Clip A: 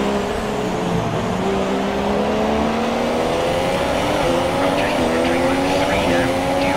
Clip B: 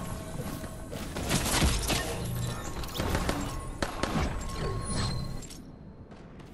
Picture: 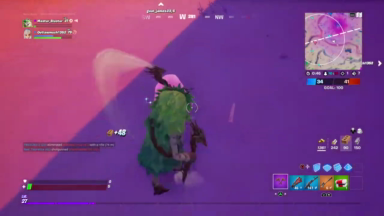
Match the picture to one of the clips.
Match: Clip B